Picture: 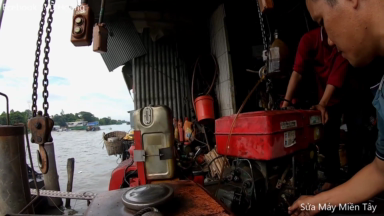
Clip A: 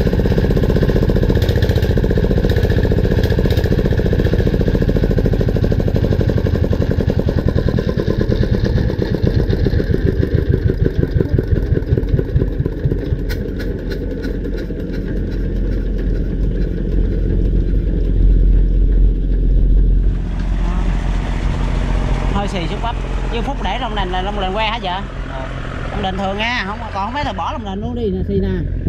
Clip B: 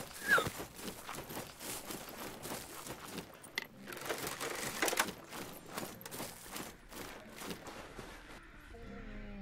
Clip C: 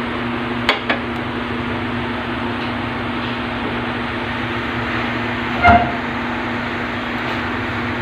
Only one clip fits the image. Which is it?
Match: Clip A